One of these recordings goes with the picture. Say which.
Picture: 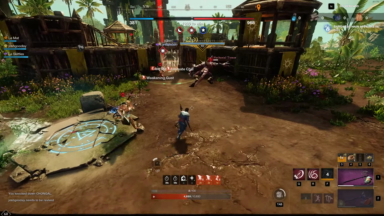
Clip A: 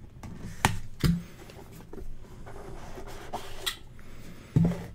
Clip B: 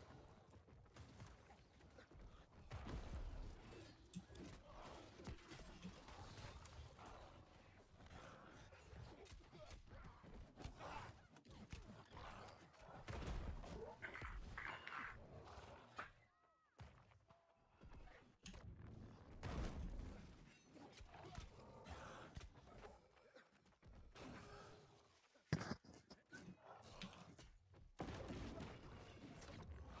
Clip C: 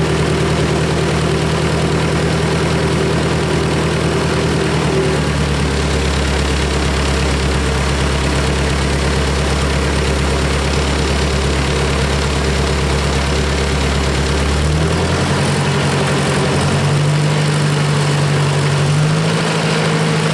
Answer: B